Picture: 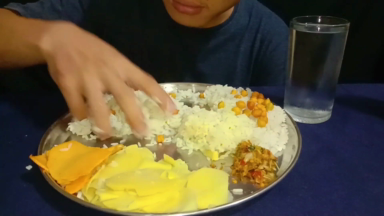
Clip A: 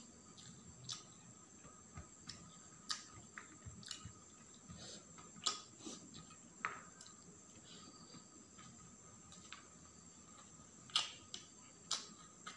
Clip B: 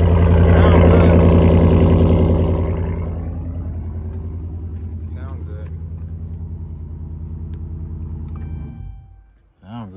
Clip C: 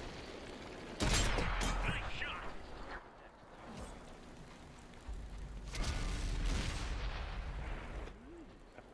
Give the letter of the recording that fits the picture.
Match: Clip A